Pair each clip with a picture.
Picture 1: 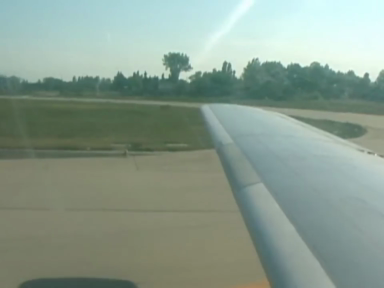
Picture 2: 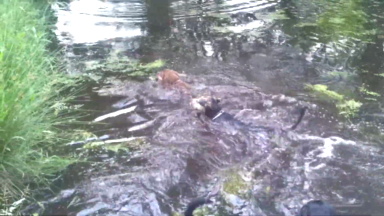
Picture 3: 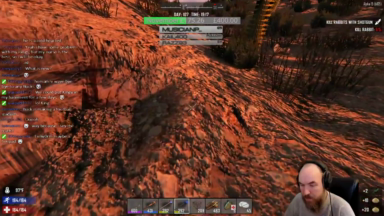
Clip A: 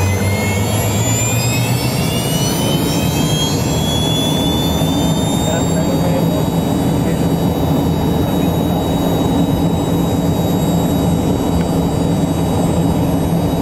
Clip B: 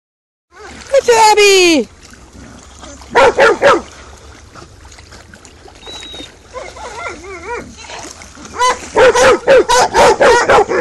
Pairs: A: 1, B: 2